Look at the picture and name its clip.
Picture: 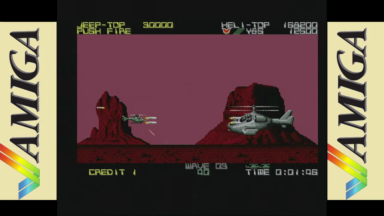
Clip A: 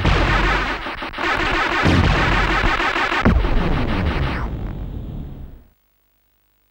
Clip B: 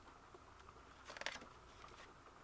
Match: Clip A